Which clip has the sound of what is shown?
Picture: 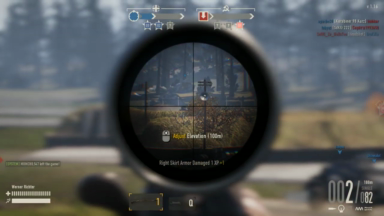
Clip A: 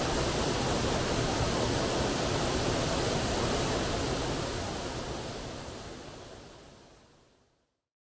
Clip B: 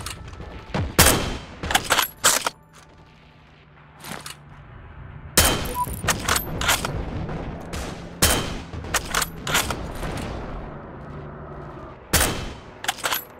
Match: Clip B